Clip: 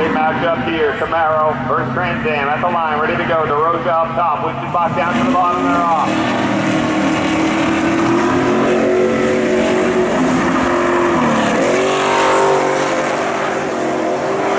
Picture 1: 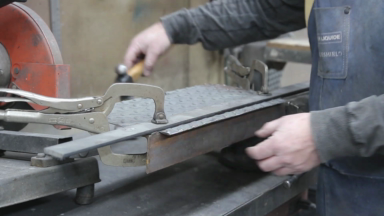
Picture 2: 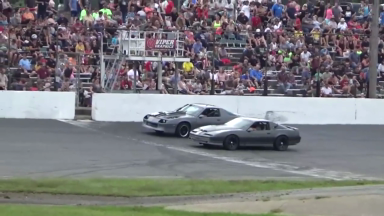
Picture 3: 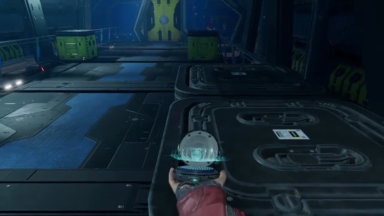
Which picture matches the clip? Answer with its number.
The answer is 2